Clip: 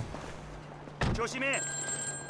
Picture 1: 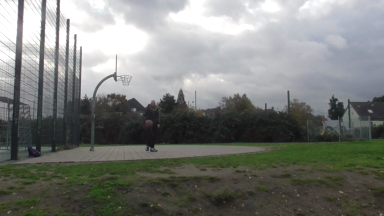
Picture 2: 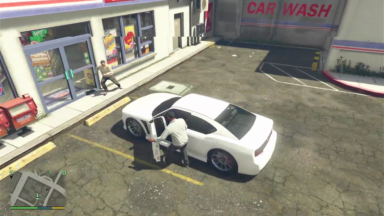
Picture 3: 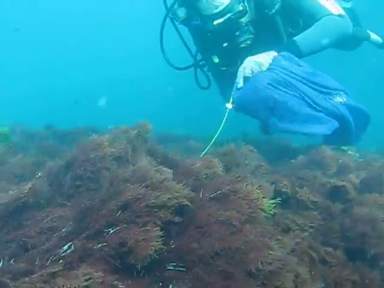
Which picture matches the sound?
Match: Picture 2